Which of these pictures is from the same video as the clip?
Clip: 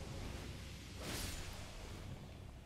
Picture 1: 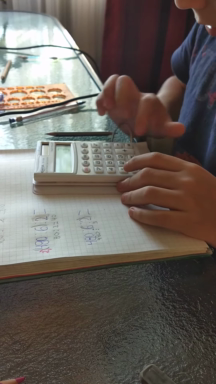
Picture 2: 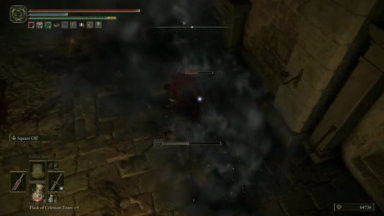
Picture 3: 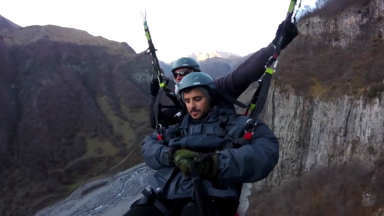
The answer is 2